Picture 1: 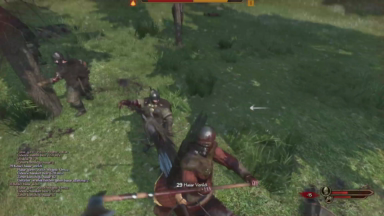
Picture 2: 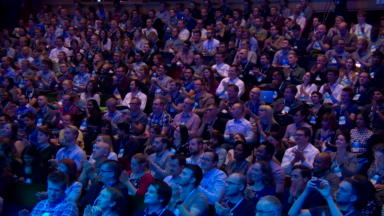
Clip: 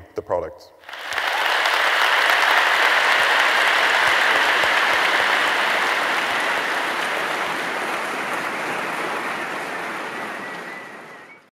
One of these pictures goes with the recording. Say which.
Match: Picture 2